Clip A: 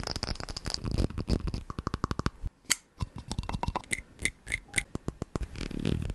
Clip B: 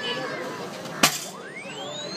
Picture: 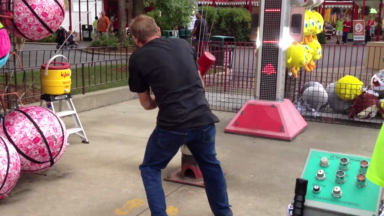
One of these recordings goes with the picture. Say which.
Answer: B